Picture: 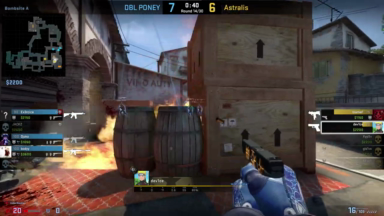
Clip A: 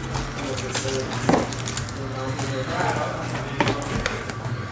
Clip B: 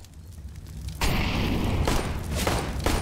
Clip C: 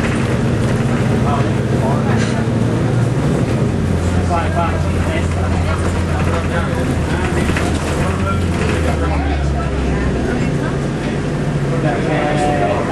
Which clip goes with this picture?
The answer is B